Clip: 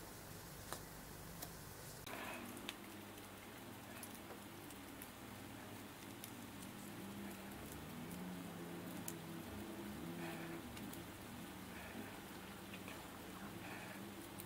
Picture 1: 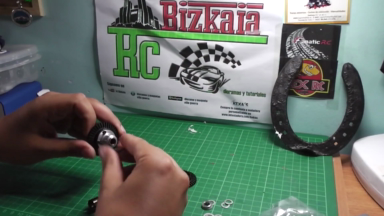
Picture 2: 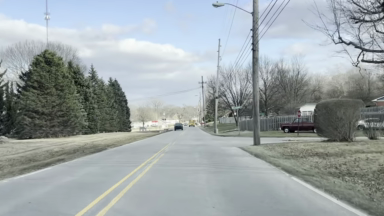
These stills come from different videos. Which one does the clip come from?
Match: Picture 1